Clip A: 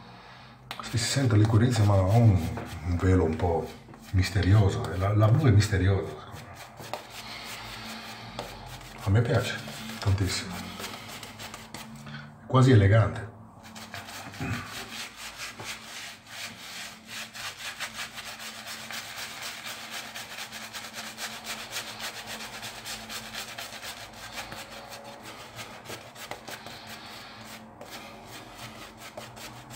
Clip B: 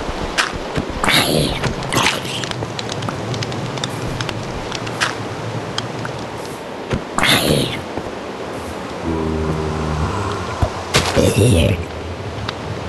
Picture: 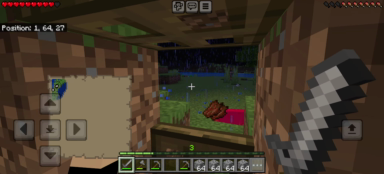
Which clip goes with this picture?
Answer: B